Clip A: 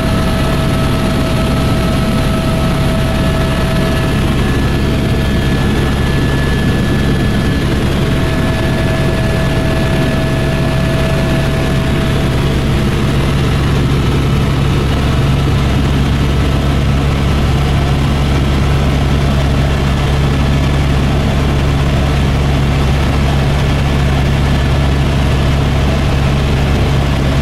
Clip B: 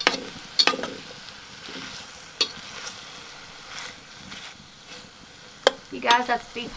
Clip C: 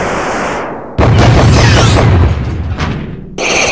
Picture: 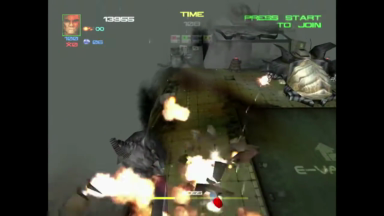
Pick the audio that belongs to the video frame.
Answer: C